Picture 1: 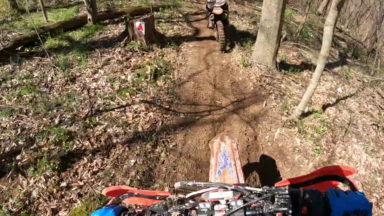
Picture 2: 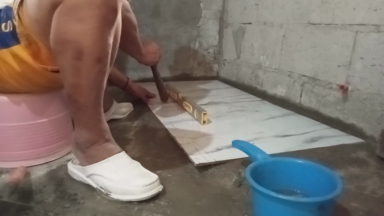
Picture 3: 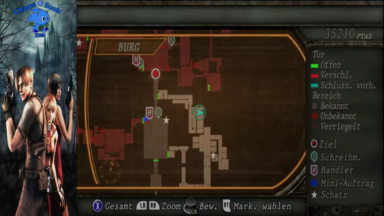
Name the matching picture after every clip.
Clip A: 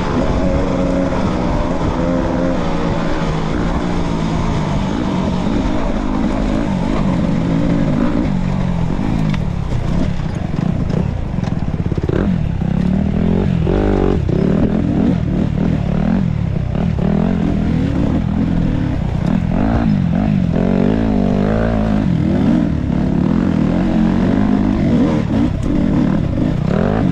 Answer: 1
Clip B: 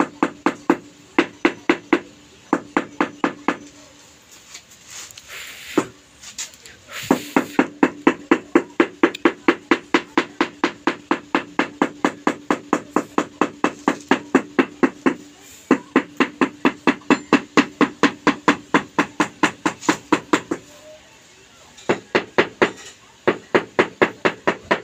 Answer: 2